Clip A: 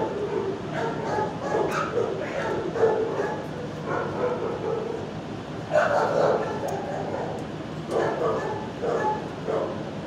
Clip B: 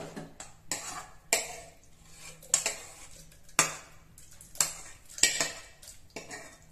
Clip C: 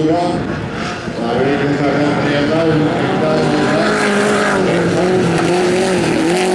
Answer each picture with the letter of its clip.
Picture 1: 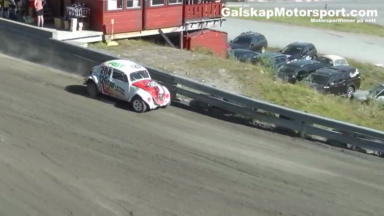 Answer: C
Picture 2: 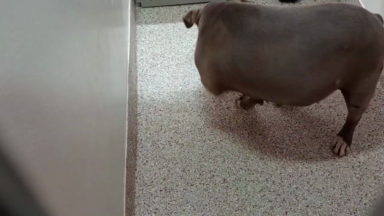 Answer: A